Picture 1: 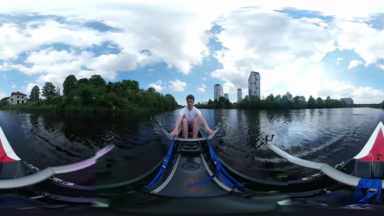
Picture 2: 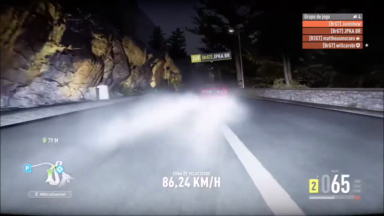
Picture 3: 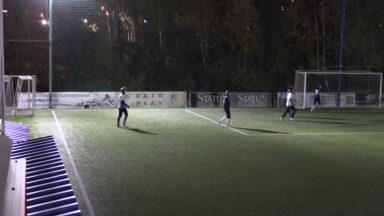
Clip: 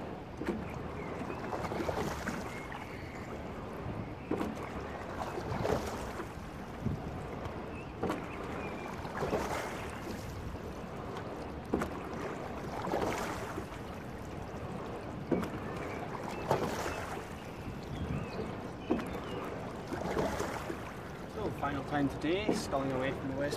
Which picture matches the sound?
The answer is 1